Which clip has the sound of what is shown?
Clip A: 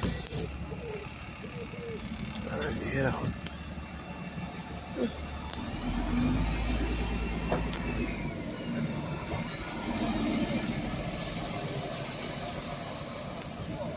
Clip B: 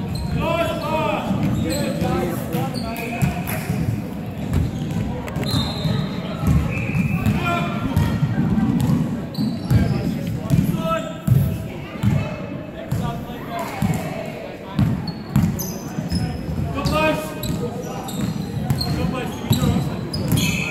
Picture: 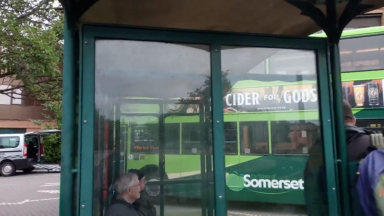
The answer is A